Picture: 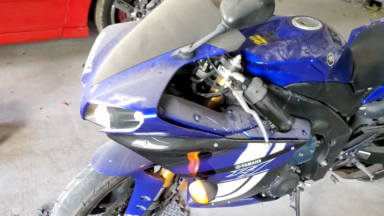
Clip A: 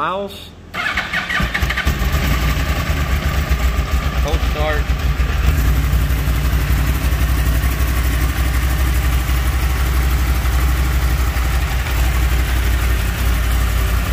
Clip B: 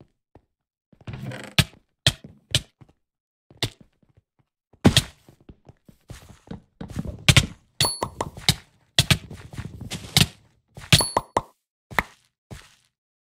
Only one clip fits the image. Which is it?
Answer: A